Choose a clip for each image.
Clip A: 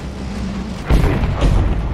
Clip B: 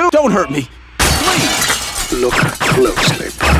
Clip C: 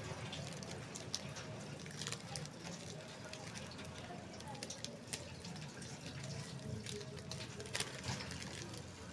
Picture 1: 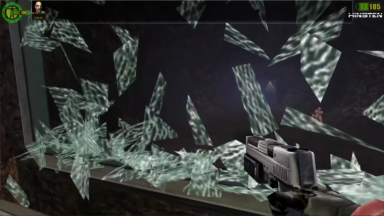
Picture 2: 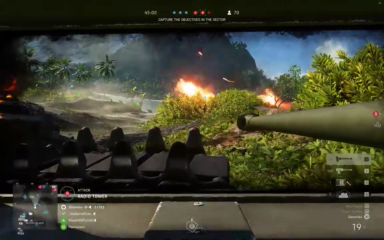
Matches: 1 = B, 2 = A